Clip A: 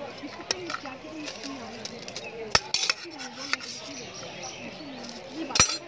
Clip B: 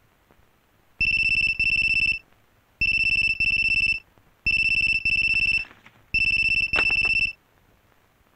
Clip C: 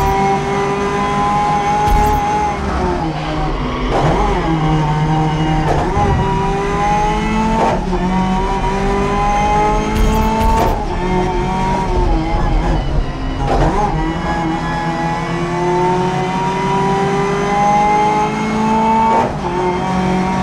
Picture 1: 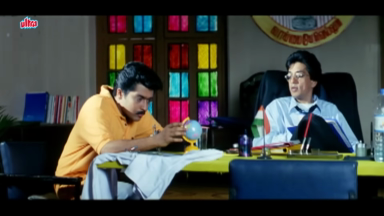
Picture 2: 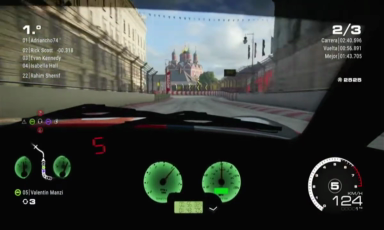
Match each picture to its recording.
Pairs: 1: B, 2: C